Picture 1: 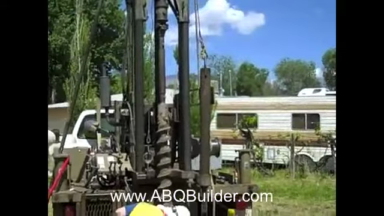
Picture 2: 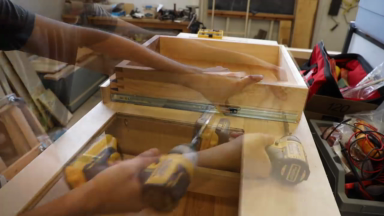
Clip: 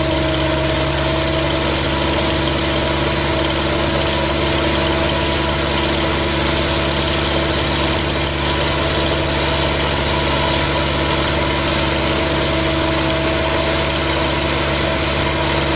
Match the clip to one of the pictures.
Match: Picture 1